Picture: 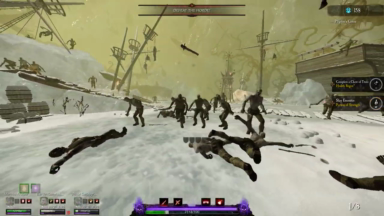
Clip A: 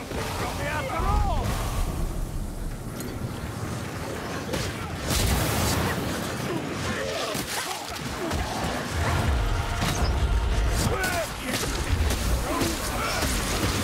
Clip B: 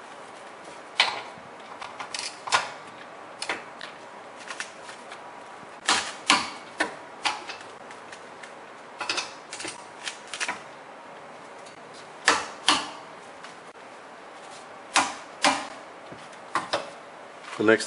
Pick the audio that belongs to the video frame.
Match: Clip A